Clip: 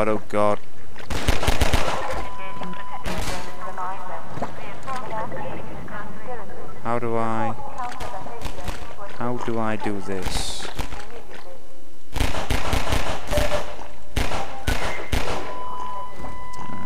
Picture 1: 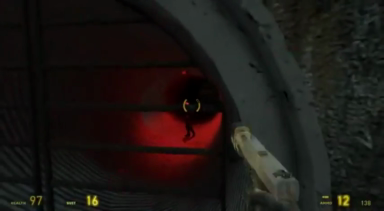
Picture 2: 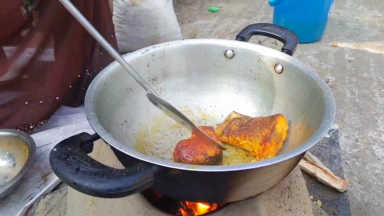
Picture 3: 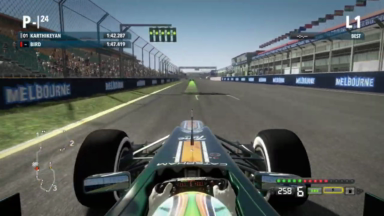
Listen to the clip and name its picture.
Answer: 1